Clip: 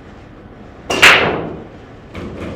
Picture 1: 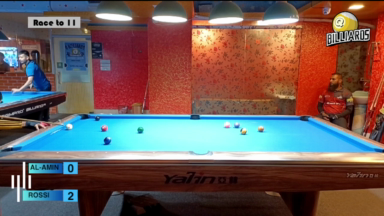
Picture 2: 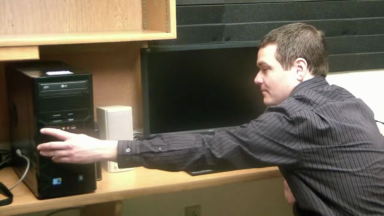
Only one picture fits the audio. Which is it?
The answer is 1